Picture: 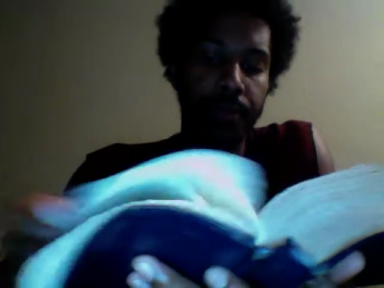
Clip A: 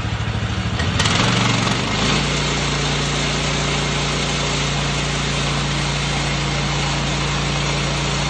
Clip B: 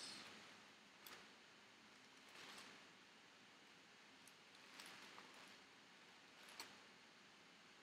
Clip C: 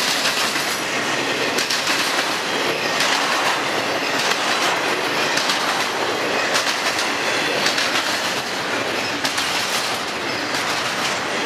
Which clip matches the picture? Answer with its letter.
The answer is B